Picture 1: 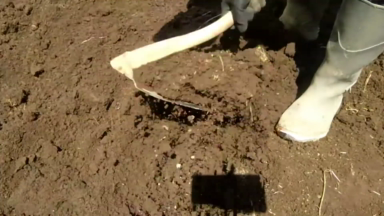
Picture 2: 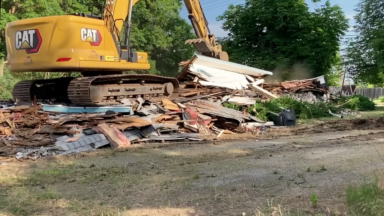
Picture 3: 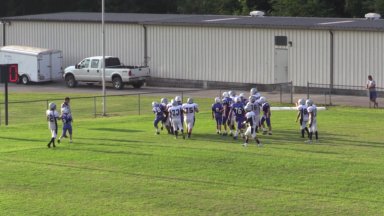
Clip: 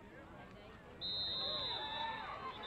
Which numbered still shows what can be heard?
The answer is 3